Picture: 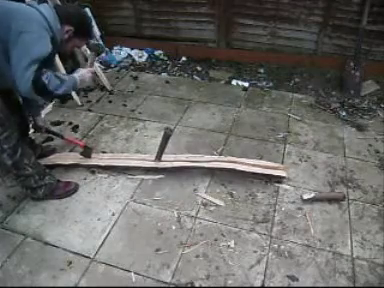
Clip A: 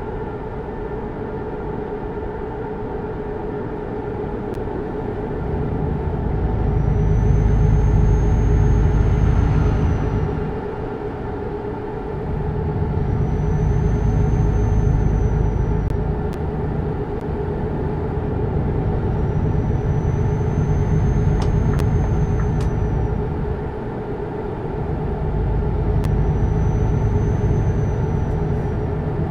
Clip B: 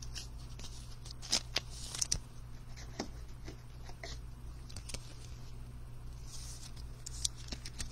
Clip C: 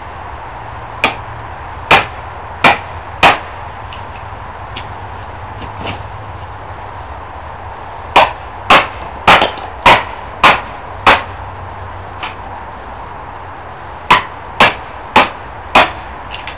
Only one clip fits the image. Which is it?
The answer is C